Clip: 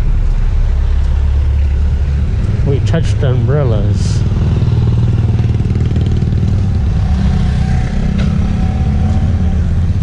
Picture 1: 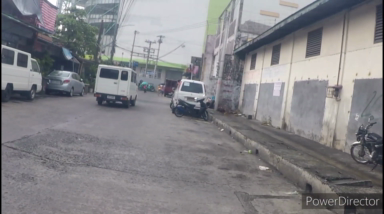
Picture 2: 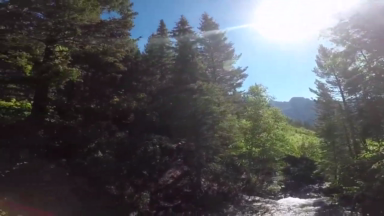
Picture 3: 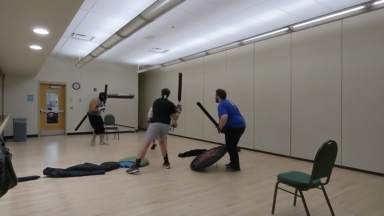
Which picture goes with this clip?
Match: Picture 1